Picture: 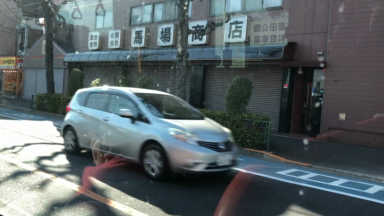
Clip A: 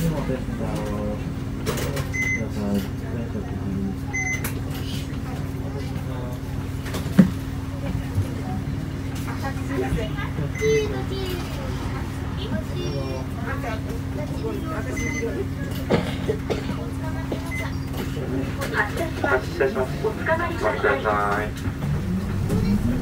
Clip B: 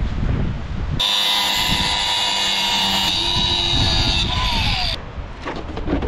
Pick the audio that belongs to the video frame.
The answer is A